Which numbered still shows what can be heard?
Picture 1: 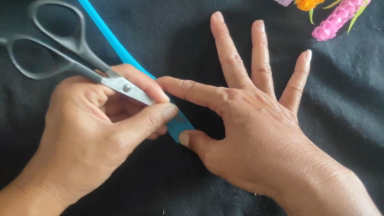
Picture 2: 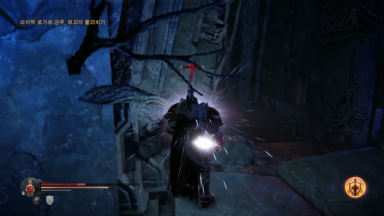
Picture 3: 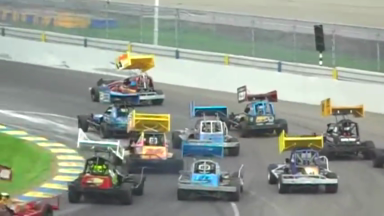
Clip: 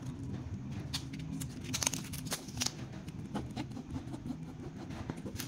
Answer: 1